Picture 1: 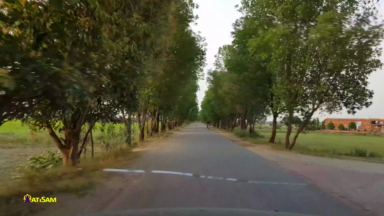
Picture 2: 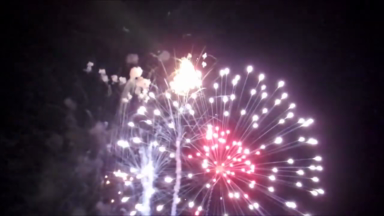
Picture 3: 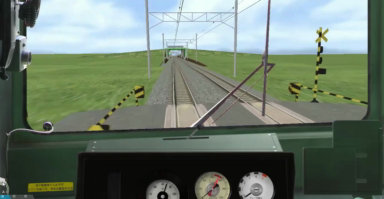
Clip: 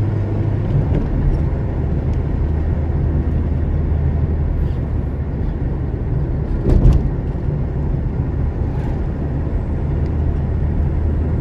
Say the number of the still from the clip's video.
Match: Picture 1